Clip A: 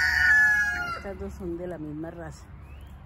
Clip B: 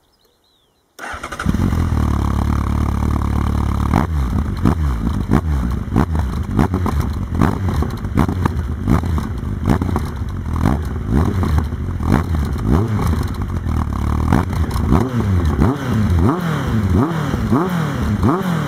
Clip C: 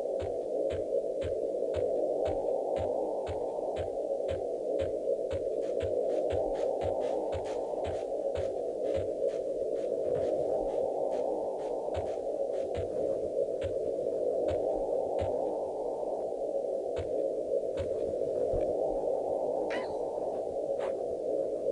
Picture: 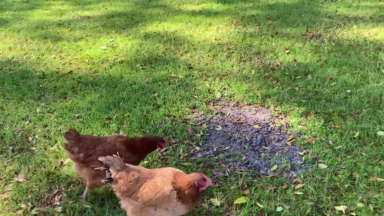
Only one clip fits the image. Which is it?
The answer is A